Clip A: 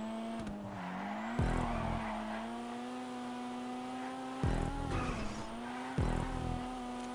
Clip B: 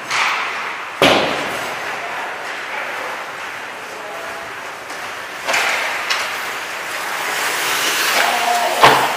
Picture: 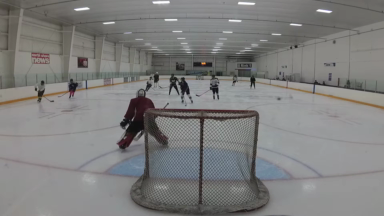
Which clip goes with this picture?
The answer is B